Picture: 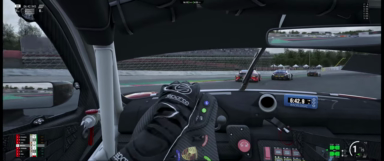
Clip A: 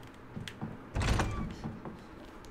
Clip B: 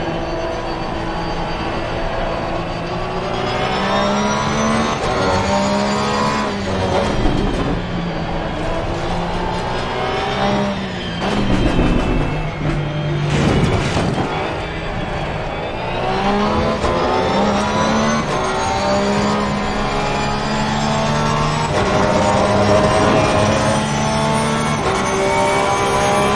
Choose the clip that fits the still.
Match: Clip B